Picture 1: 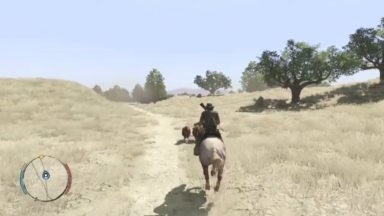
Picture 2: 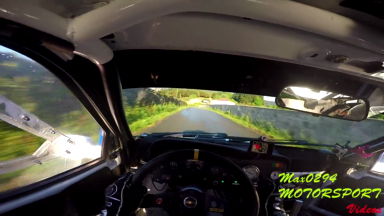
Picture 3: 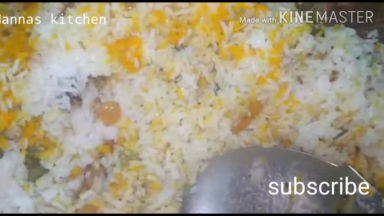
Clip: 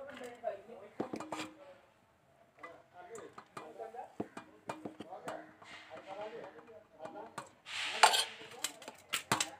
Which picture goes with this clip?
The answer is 3